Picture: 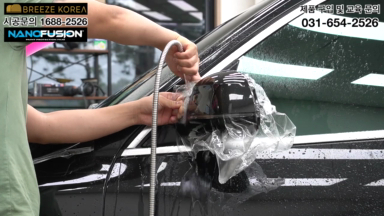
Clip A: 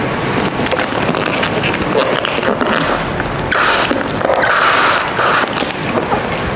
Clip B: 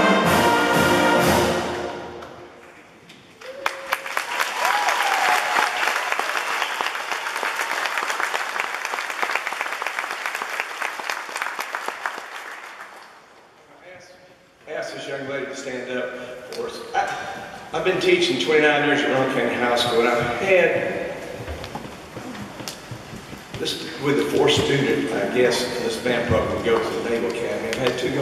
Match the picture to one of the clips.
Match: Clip A